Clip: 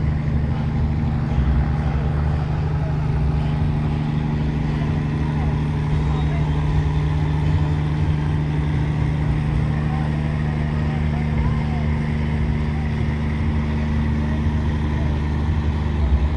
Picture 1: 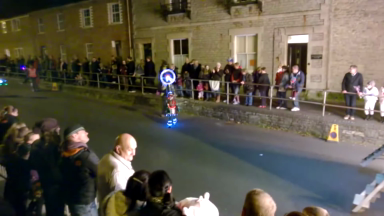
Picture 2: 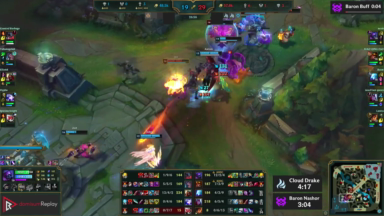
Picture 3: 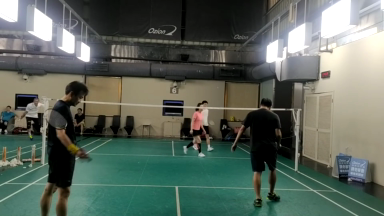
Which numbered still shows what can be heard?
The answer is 1